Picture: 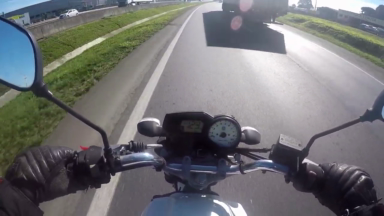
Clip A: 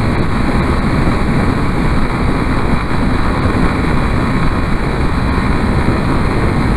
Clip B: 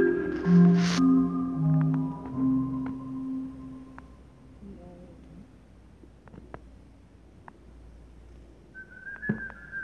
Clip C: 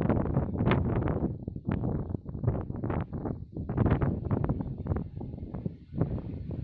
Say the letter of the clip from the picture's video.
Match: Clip A